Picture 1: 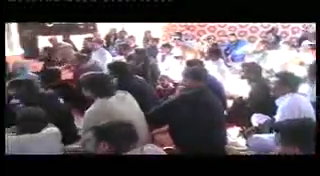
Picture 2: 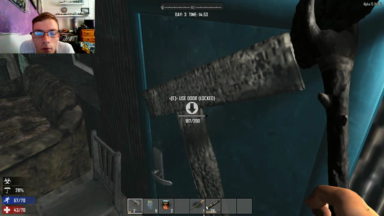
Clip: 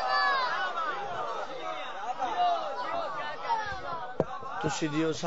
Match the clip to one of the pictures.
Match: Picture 1